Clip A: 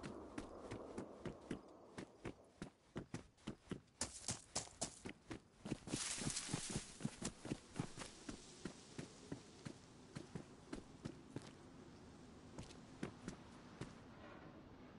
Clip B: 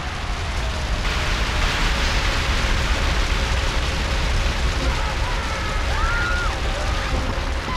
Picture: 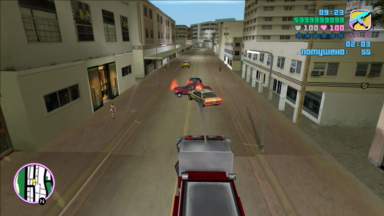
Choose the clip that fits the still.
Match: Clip B